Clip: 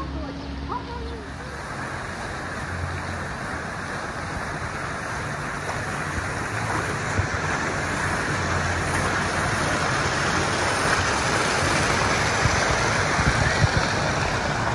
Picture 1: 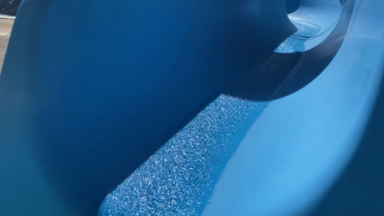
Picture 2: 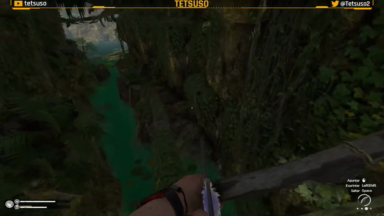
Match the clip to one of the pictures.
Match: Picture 1